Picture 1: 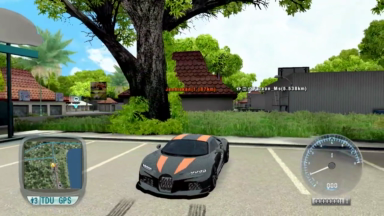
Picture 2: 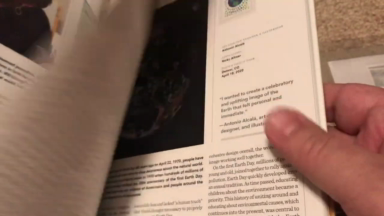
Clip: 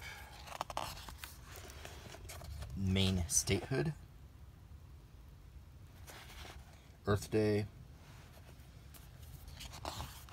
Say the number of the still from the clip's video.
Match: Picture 2